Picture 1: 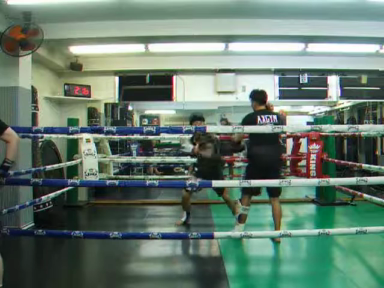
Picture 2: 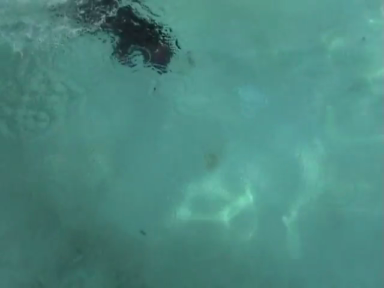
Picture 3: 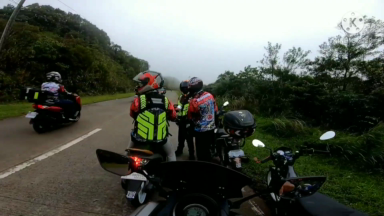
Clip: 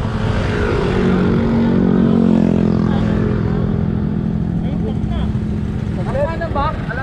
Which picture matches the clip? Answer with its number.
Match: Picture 3